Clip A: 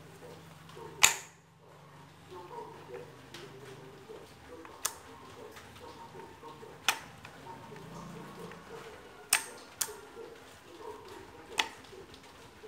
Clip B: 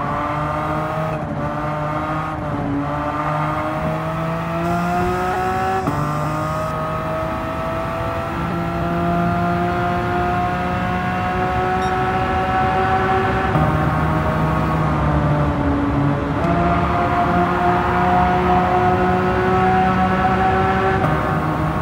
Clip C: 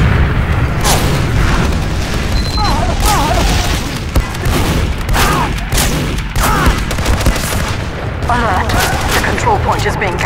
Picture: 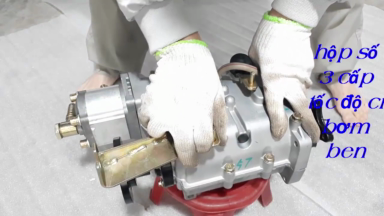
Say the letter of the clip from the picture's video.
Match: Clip A